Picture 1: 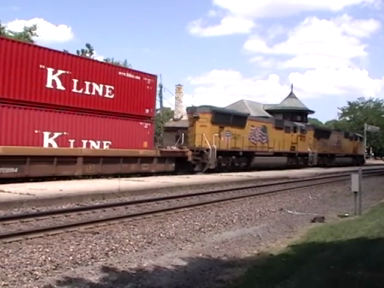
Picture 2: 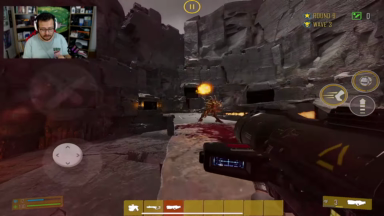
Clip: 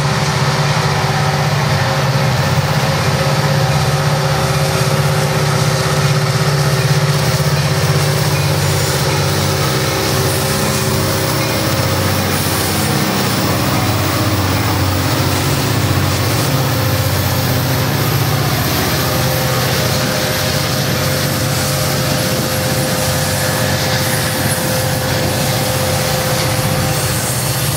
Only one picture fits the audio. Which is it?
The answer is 1